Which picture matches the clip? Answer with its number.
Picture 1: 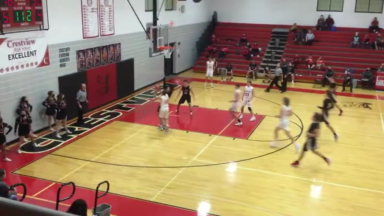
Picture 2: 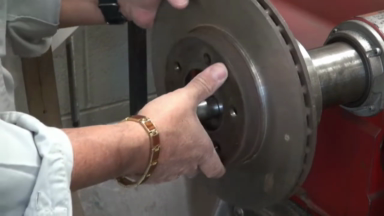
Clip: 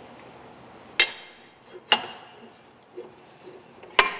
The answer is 2